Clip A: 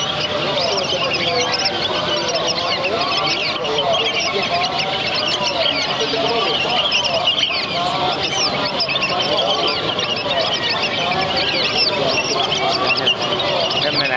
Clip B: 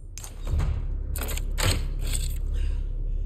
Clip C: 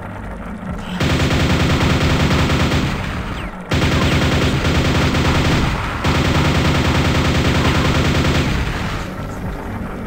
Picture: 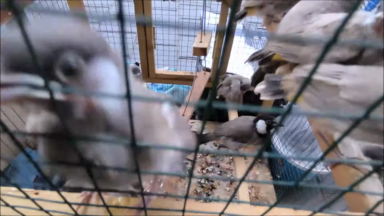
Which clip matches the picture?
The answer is A